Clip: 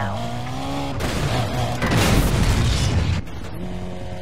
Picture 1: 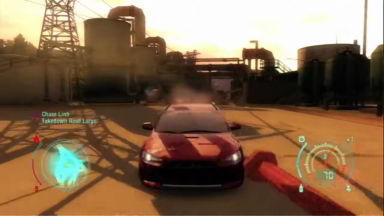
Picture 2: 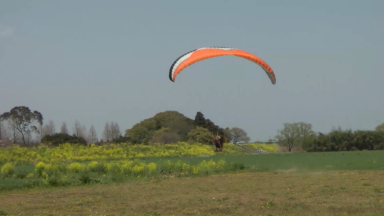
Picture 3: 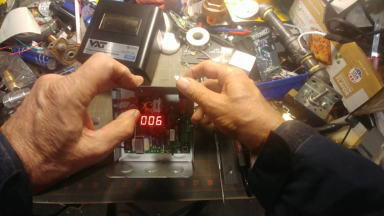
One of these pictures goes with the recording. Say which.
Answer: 1